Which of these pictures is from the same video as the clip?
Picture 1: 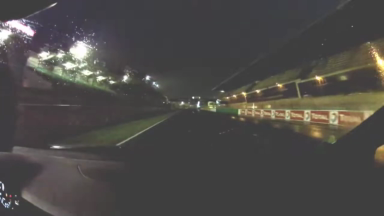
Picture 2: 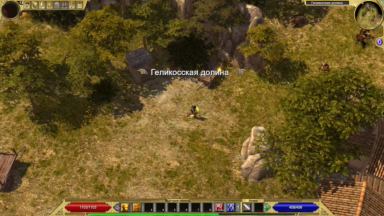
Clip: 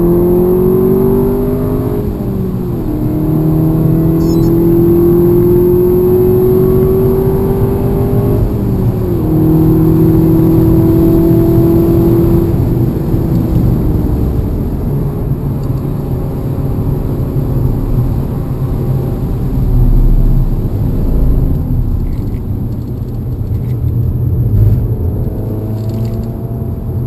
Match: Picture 1